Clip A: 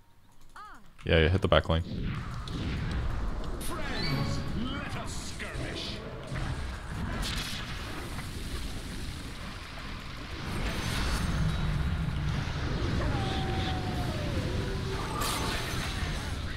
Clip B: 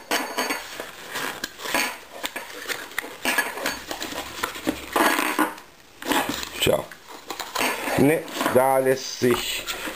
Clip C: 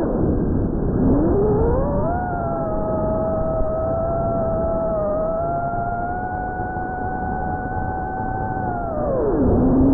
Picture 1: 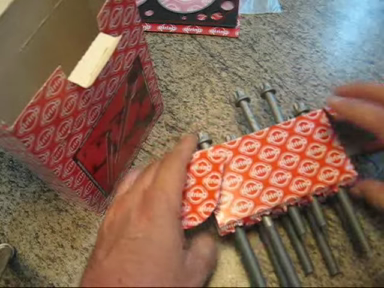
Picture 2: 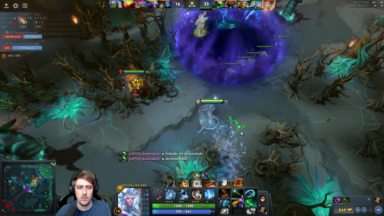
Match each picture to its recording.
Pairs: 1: B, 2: A